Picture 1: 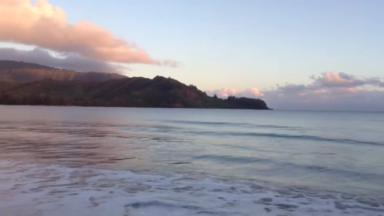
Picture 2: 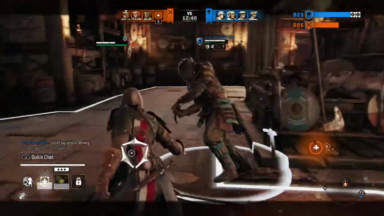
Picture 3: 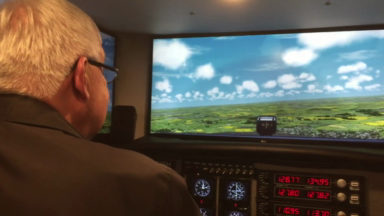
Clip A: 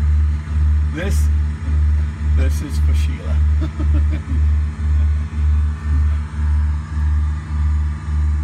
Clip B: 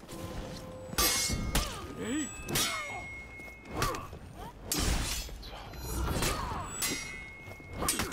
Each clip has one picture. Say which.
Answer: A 3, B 2